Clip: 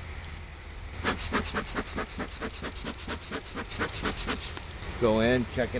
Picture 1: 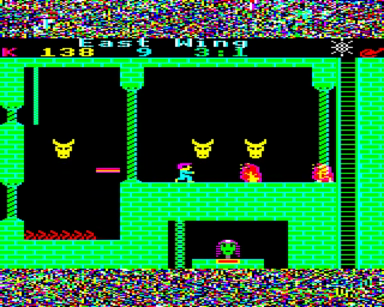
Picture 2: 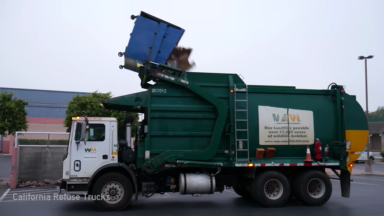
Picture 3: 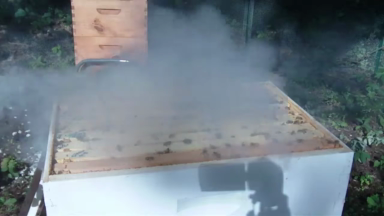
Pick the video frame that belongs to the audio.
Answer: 3